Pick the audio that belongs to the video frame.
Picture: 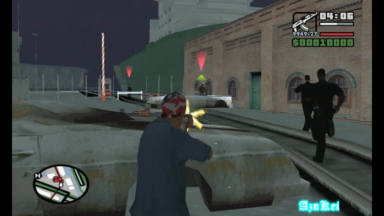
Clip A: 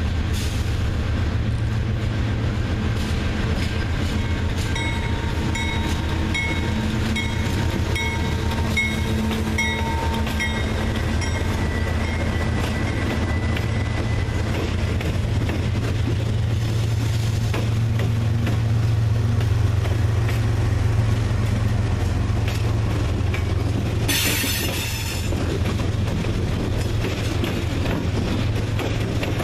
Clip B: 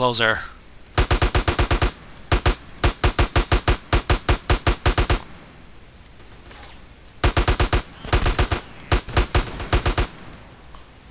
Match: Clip B